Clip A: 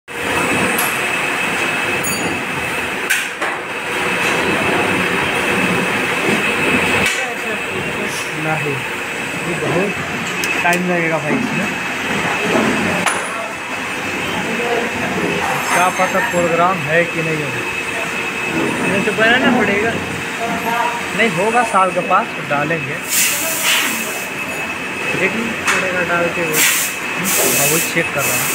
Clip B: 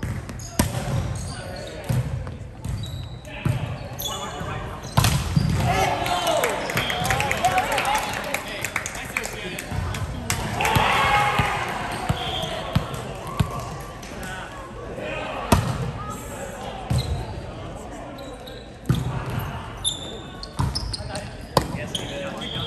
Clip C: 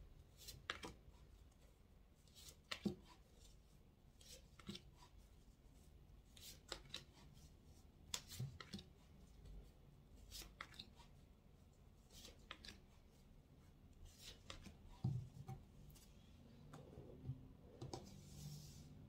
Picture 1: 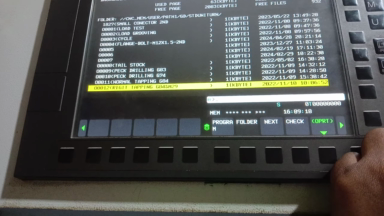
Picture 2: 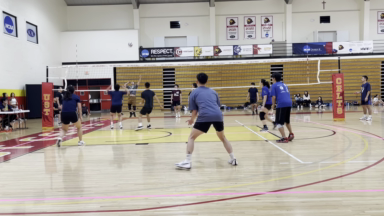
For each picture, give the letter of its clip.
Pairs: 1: A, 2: B